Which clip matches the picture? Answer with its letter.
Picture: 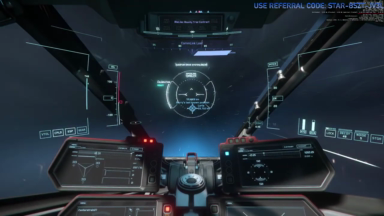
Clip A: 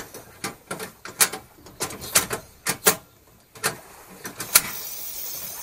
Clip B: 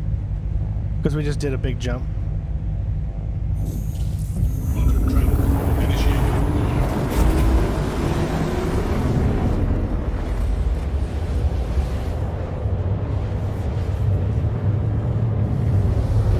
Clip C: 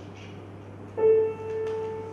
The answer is B